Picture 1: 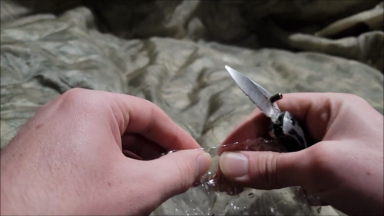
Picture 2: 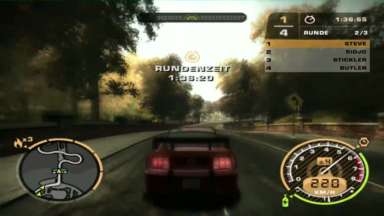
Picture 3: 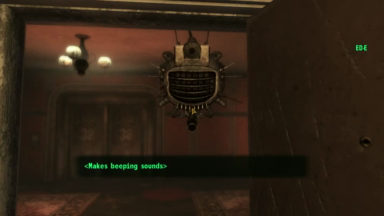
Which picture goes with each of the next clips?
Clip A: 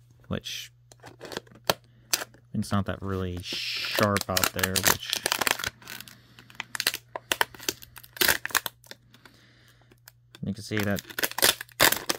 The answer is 1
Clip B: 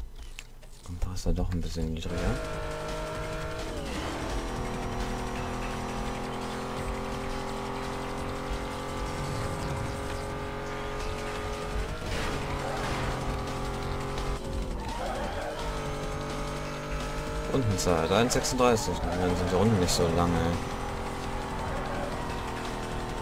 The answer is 2